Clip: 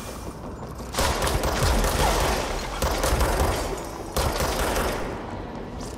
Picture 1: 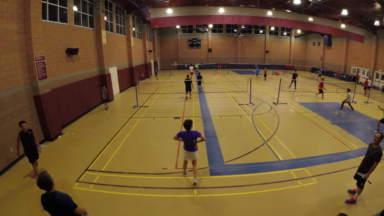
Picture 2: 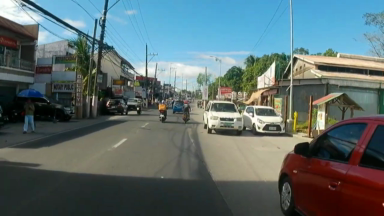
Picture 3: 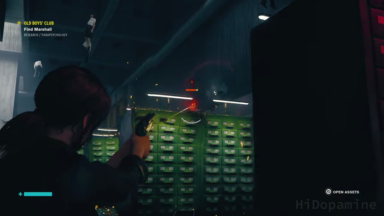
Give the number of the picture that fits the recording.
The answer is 3